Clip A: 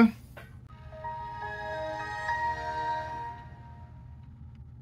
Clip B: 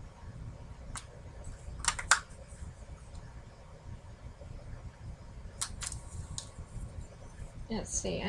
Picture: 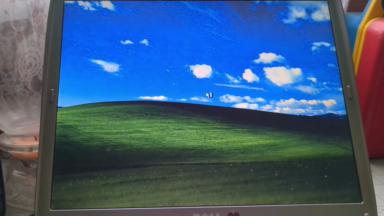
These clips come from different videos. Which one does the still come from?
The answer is A